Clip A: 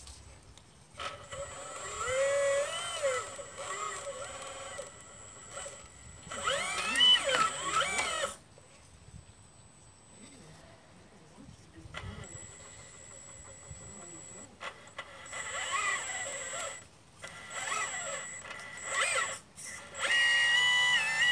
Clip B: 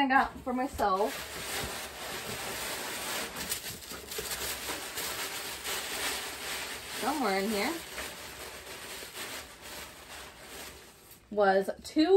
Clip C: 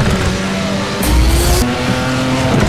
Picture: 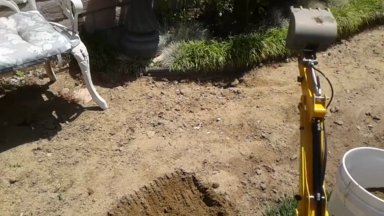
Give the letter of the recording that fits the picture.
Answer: A